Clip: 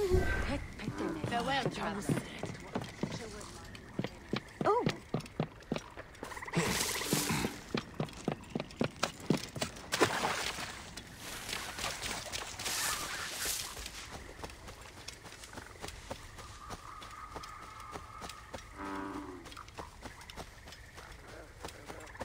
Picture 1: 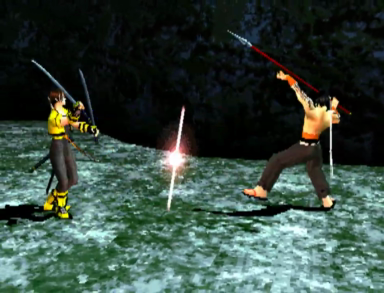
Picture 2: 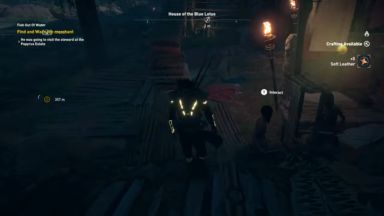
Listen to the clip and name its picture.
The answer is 2